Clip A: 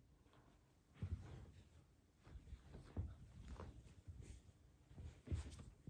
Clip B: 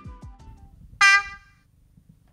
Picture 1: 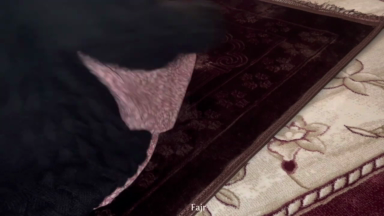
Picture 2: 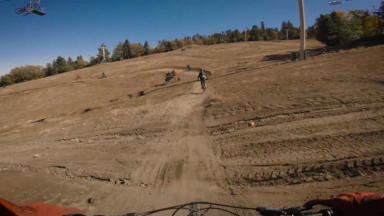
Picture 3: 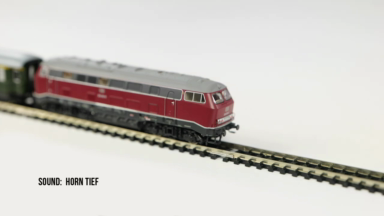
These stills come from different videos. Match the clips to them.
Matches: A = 1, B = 3